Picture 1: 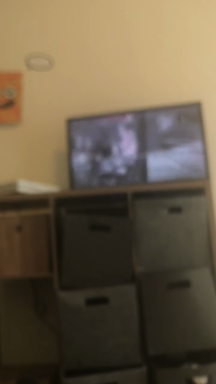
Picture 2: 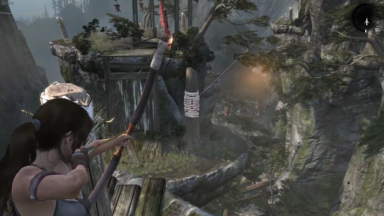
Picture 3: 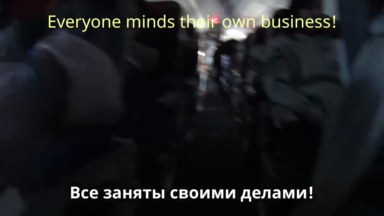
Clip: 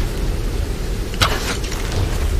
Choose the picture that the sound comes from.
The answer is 2